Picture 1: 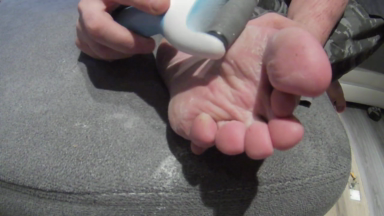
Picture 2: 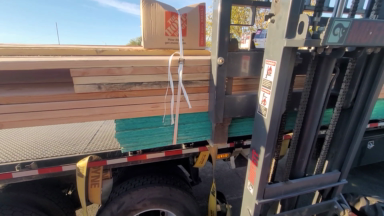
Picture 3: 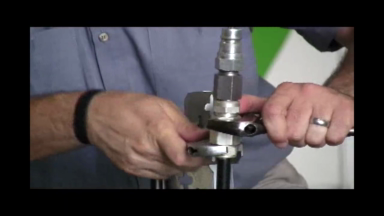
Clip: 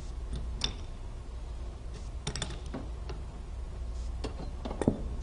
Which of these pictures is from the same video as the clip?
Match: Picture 3